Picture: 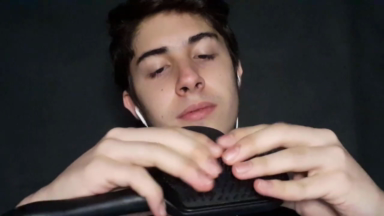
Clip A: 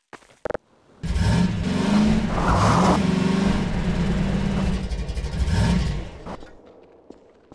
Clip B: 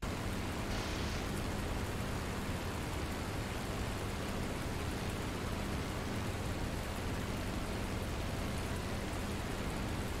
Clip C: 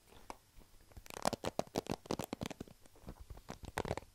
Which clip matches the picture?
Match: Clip C